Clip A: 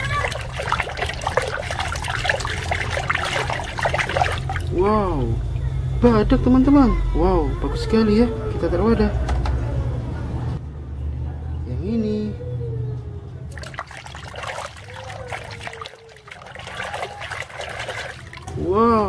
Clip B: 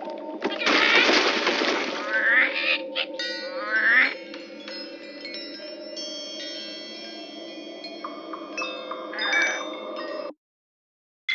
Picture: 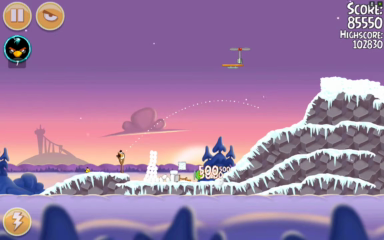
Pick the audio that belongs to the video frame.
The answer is B